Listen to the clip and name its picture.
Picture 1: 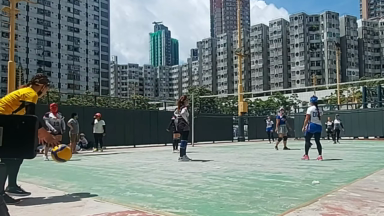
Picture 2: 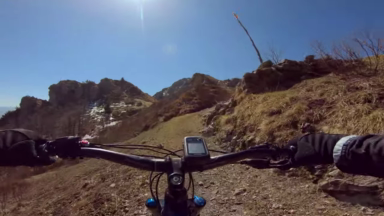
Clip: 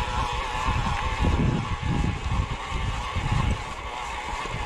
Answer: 2